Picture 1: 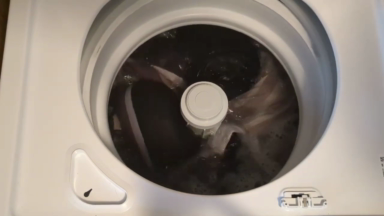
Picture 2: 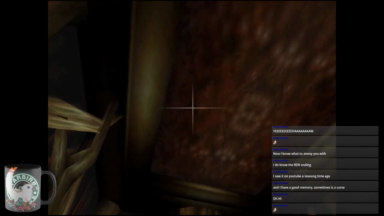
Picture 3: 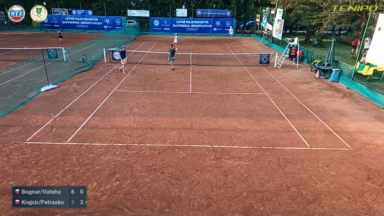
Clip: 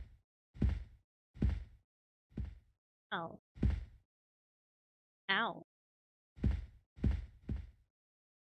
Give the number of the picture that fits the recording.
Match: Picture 2